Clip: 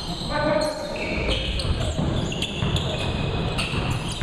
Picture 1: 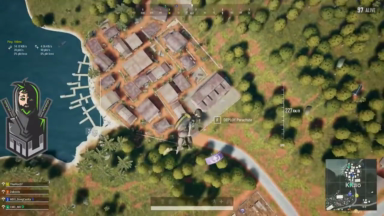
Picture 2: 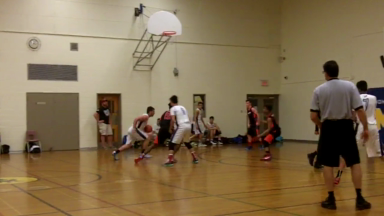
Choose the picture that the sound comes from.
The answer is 2